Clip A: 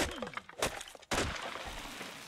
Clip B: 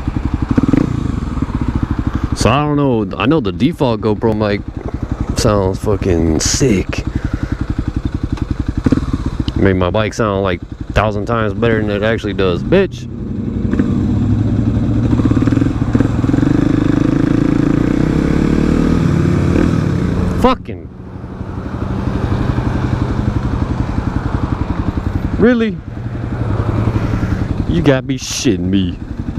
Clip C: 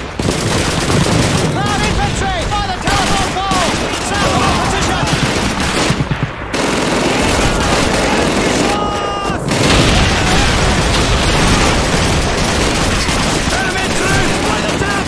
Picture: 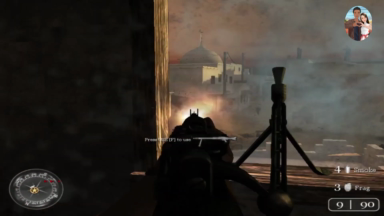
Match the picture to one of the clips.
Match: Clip C